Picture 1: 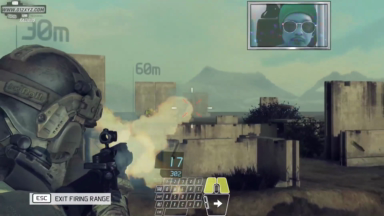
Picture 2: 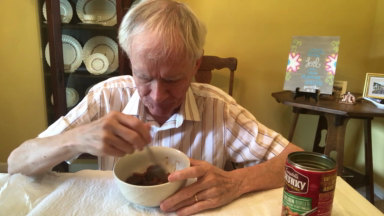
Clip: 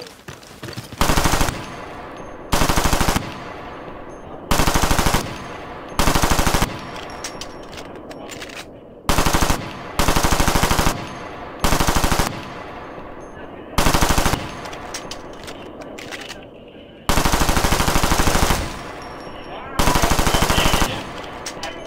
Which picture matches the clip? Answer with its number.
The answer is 1